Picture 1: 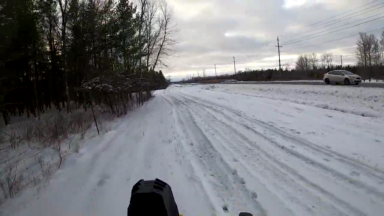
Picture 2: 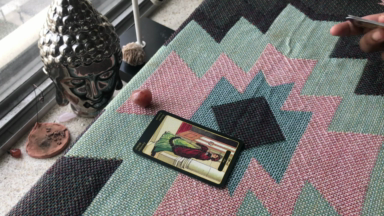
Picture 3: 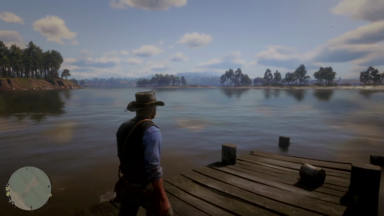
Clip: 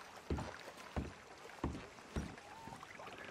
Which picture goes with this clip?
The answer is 3